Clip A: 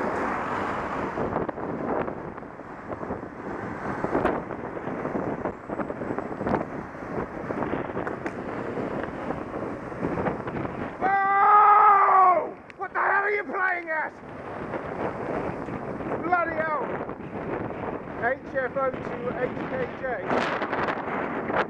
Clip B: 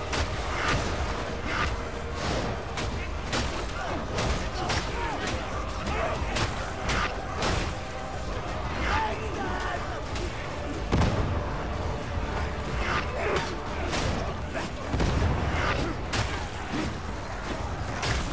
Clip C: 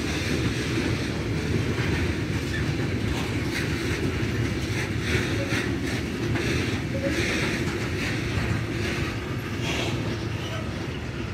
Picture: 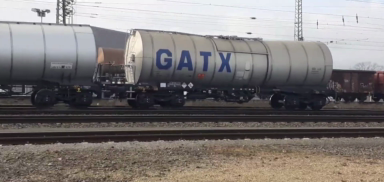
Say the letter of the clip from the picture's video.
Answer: C